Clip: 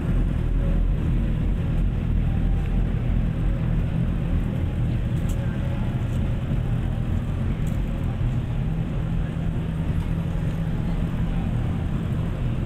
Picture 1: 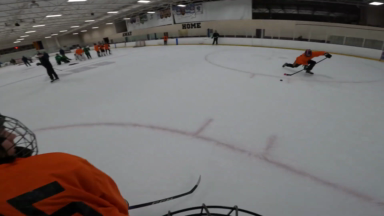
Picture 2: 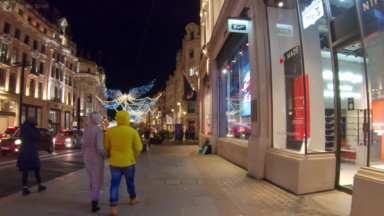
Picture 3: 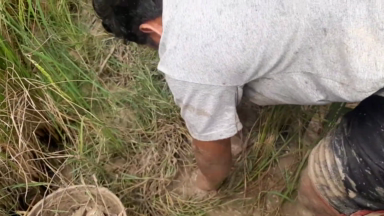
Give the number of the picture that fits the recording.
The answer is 2